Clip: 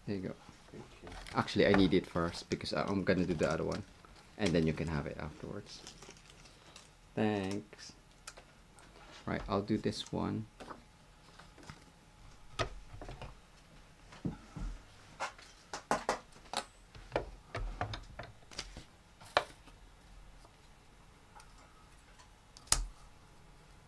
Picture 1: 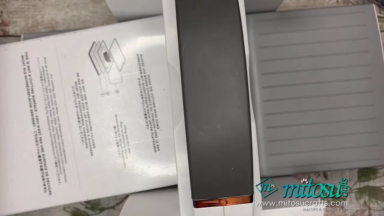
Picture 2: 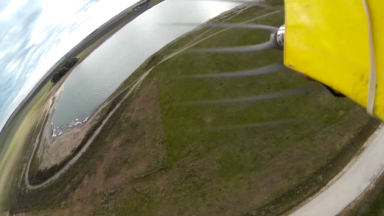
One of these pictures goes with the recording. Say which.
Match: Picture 1